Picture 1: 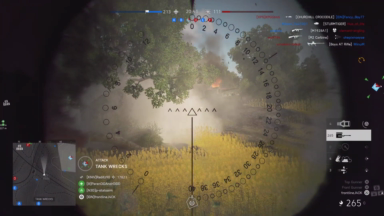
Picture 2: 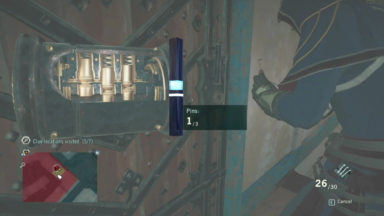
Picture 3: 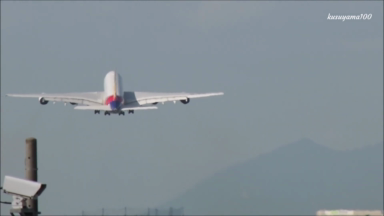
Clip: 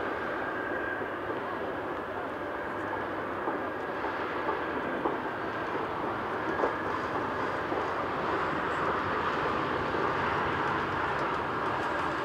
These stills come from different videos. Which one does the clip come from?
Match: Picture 3